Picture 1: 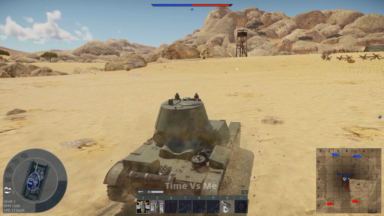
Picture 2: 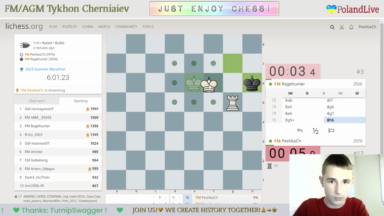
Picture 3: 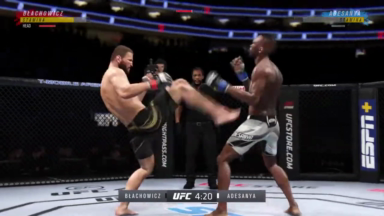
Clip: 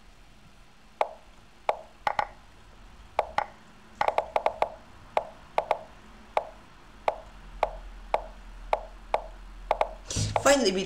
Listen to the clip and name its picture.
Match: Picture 2